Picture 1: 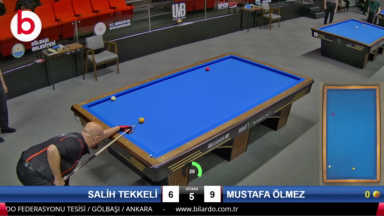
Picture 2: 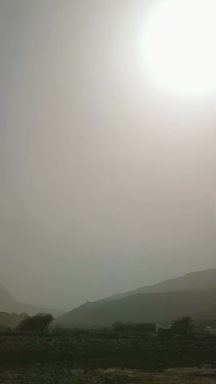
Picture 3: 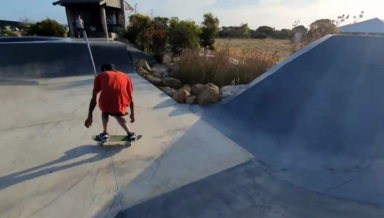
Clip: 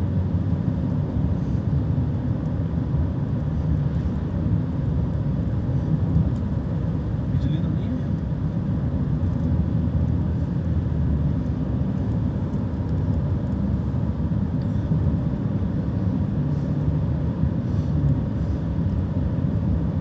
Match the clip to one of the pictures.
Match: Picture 2